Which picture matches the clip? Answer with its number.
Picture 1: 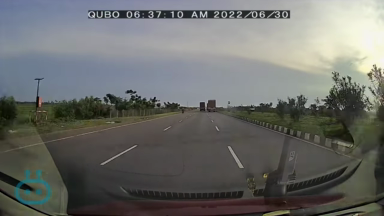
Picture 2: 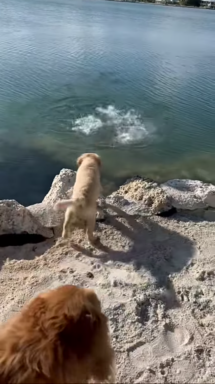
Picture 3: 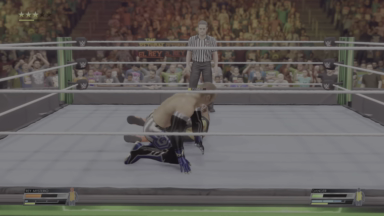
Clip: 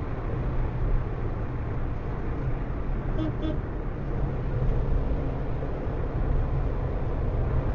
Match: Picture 1